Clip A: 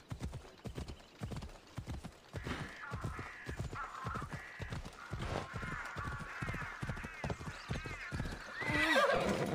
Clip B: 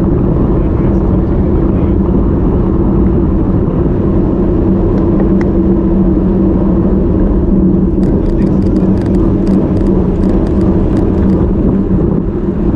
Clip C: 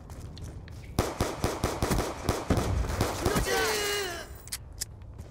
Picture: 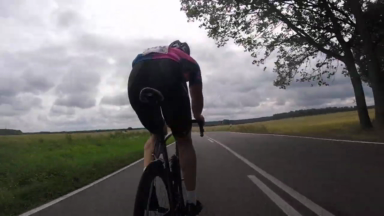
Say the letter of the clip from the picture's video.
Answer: B